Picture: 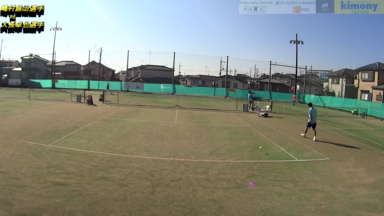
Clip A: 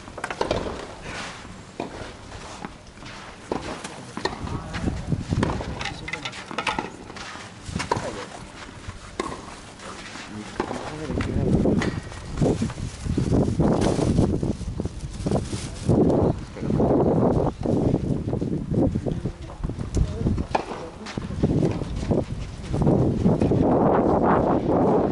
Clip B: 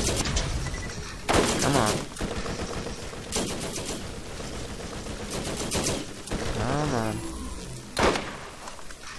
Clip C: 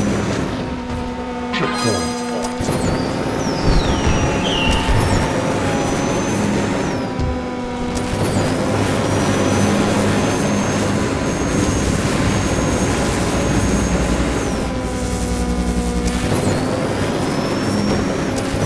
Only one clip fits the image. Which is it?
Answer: A